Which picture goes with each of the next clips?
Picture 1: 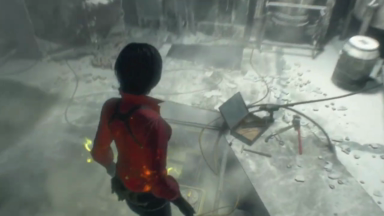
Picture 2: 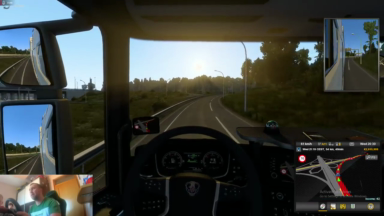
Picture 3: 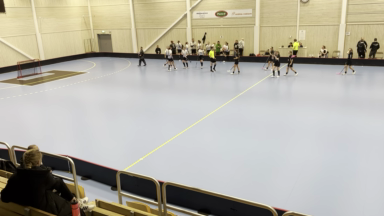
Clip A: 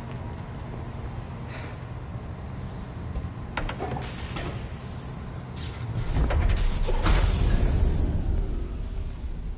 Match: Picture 1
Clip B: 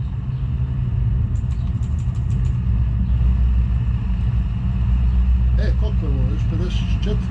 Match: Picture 2